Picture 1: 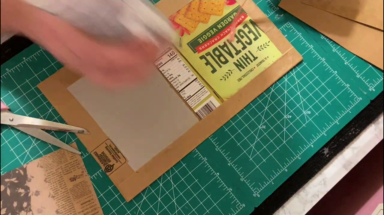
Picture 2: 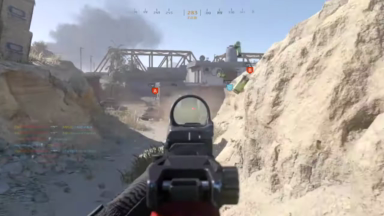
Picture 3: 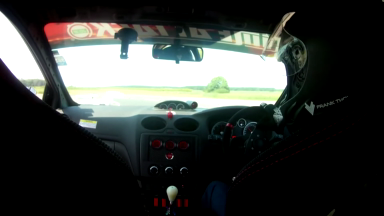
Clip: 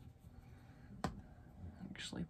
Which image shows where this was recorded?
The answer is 1